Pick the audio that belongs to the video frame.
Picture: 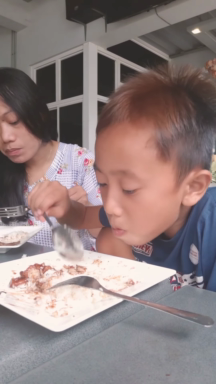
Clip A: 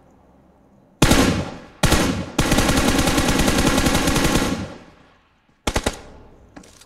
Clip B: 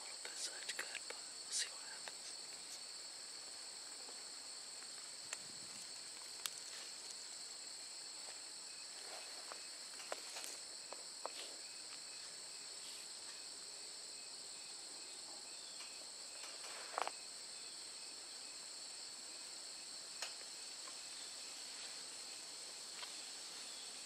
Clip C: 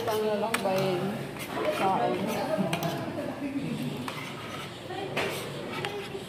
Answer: C